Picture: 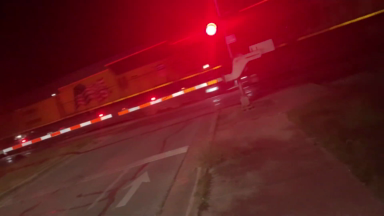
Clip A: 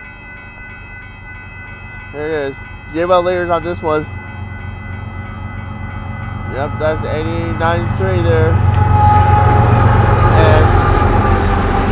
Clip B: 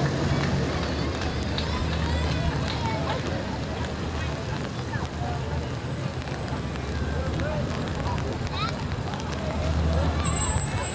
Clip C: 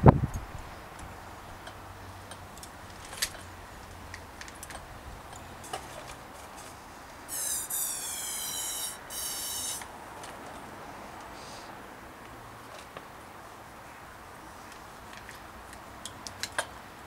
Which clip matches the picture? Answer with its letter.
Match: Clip A